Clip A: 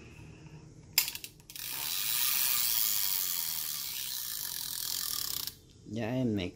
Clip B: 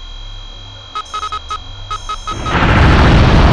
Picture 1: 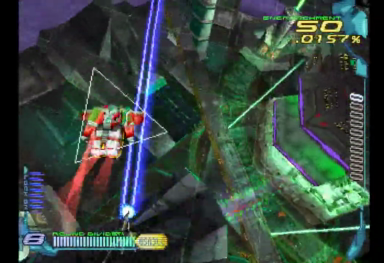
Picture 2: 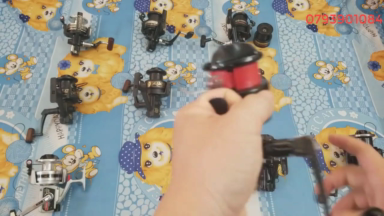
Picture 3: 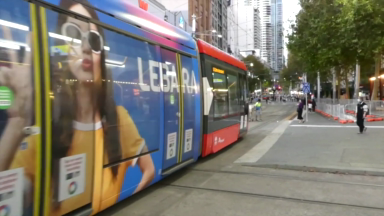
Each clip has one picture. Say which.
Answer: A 2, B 1